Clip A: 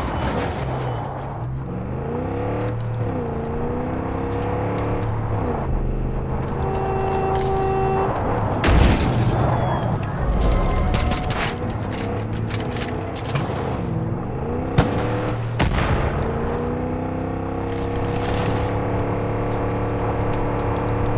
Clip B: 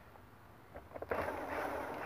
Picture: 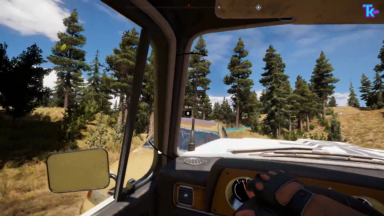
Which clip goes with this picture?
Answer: A